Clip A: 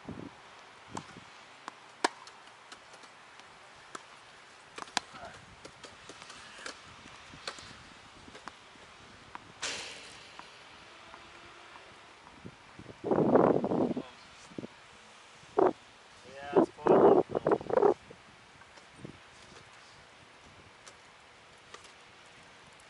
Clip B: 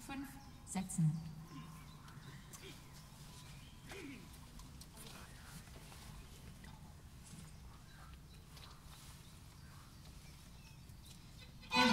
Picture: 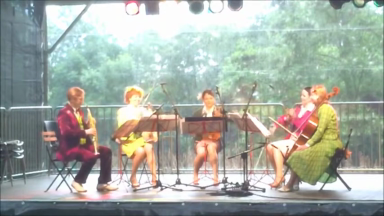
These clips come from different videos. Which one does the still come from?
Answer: B